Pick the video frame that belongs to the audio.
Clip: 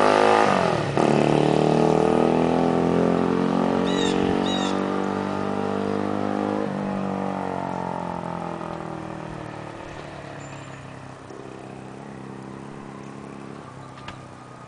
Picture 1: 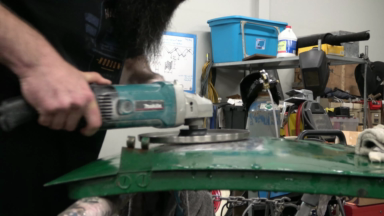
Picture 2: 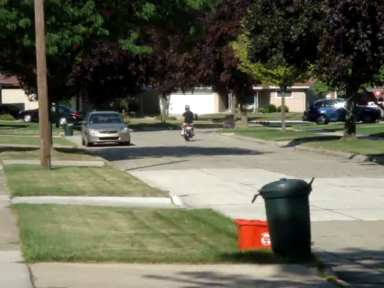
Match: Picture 2